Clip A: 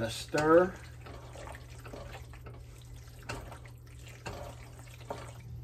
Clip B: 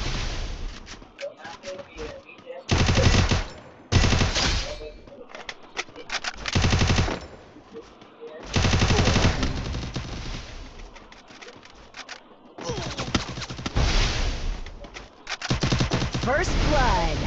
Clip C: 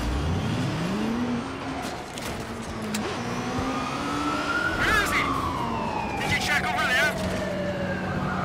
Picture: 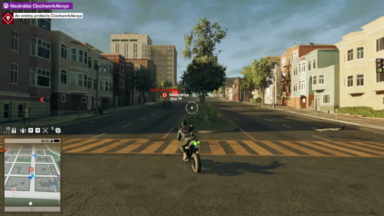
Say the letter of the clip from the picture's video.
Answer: C